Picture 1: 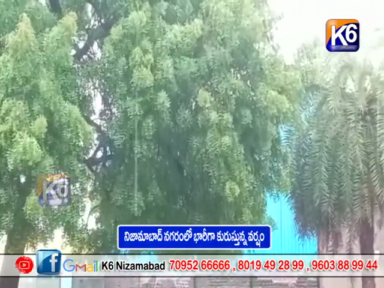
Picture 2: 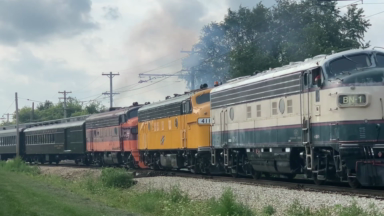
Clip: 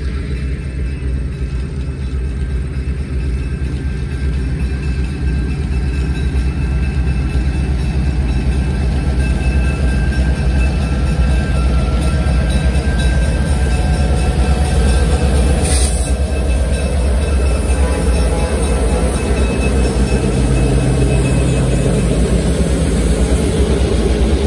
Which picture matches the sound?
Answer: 2